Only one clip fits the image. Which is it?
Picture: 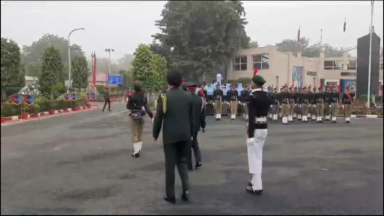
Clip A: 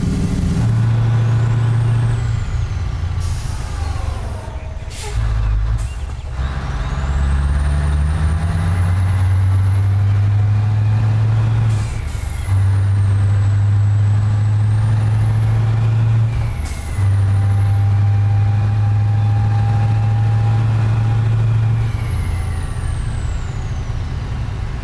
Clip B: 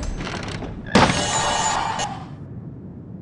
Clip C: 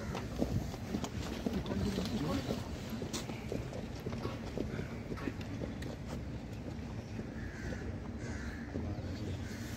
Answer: C